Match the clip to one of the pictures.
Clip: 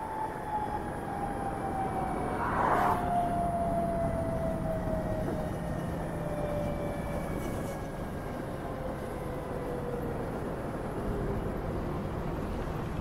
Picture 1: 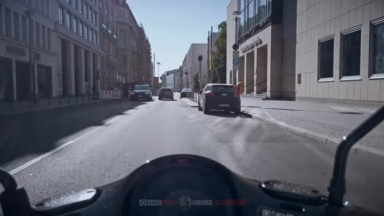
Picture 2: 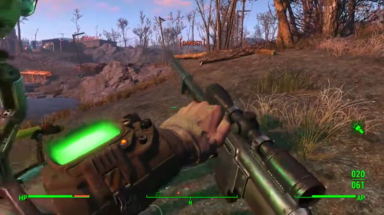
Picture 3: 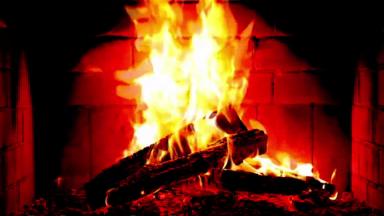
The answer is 1